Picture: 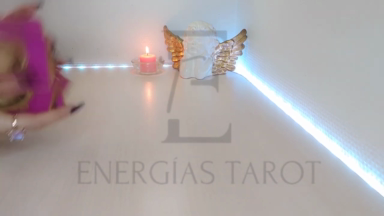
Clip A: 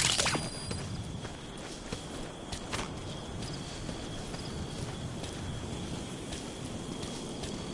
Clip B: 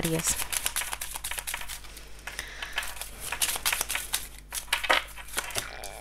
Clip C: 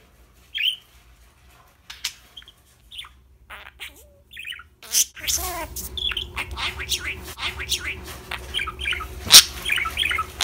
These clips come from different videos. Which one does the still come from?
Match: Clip B